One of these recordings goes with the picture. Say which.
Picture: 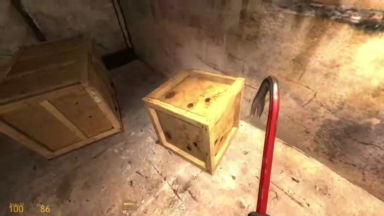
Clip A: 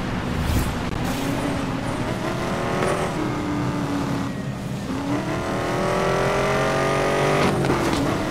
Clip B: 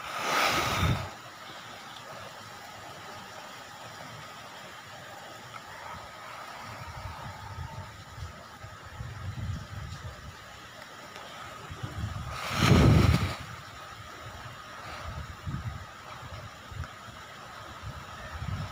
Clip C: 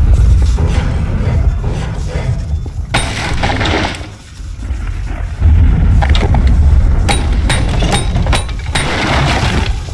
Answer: C